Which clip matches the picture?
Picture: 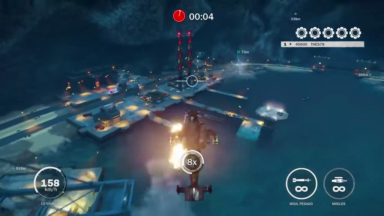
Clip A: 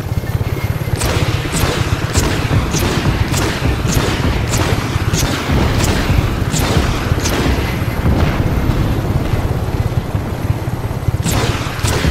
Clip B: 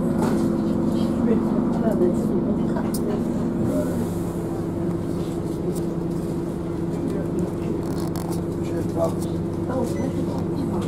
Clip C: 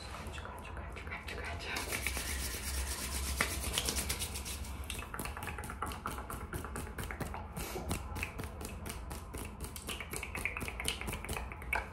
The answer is A